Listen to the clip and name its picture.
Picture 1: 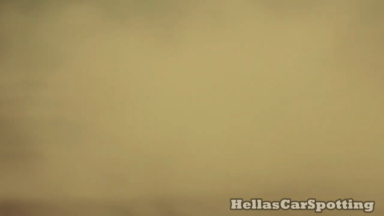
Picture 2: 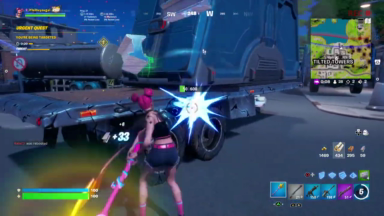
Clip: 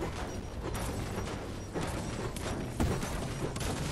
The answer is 2